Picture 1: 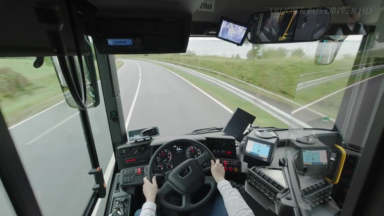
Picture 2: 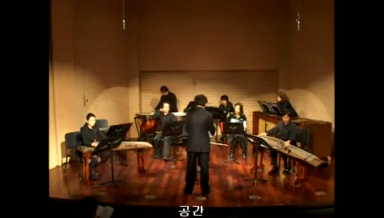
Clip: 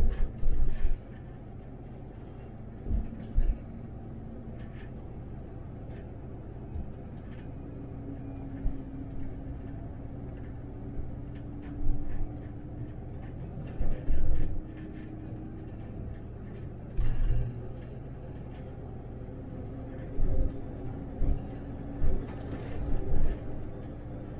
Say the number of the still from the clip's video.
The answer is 1